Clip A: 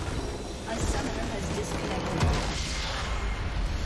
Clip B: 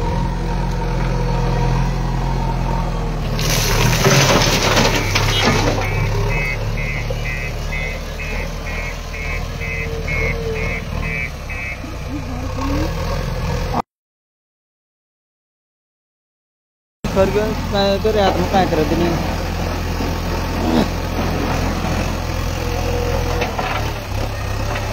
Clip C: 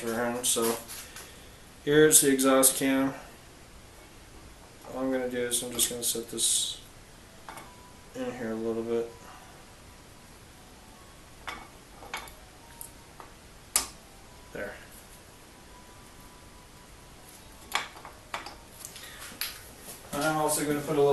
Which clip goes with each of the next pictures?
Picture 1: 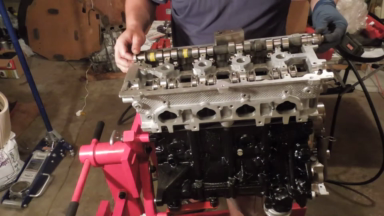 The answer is C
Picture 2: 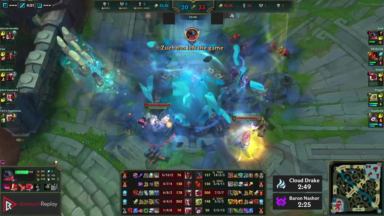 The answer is A